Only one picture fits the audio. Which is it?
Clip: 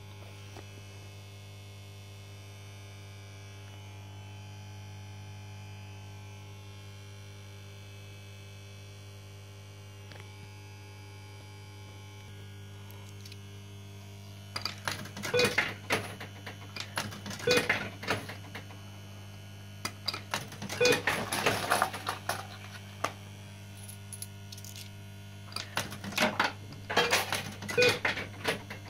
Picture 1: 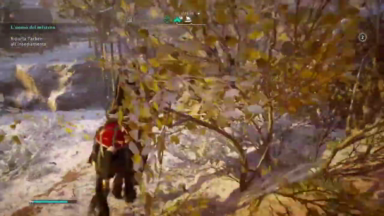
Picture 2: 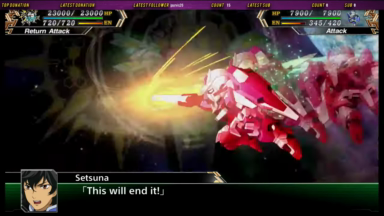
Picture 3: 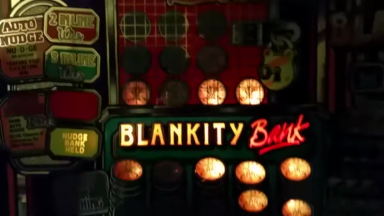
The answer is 3